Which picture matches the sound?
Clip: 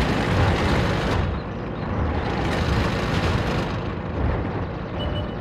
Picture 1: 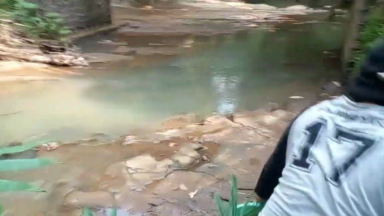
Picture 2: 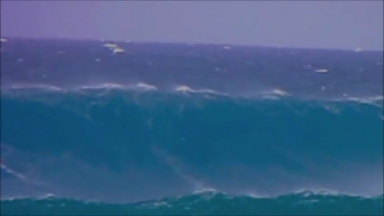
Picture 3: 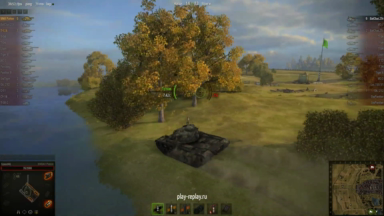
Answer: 3